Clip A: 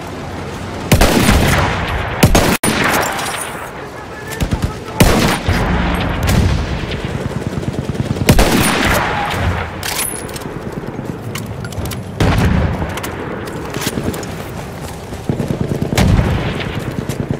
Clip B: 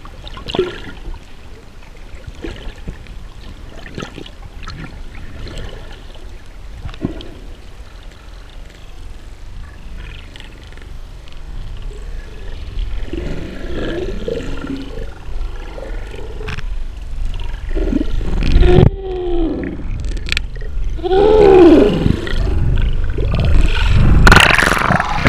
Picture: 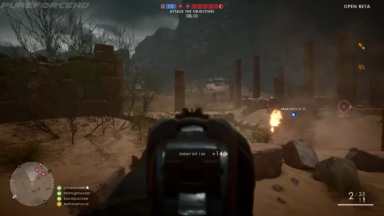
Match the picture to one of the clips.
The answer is A